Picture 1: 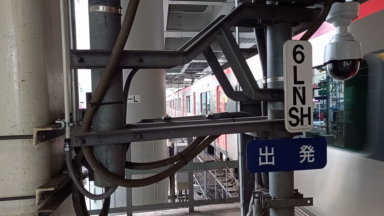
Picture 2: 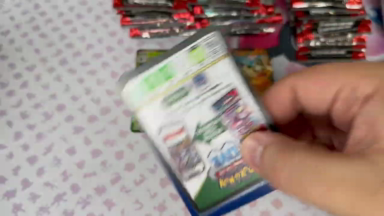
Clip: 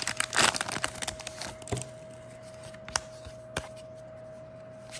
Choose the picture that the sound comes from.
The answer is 2